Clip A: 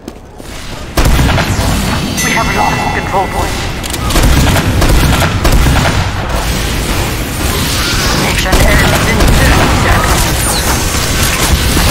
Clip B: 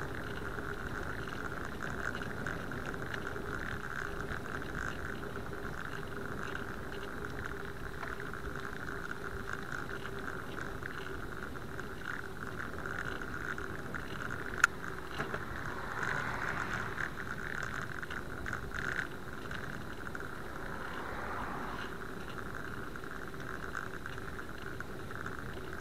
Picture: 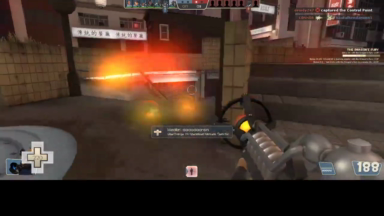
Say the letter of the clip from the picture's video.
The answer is A